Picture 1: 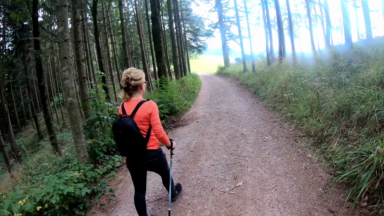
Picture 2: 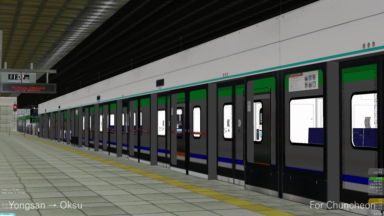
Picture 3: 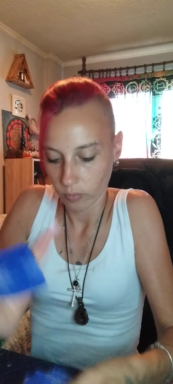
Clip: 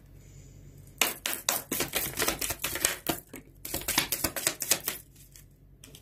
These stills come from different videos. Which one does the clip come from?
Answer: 3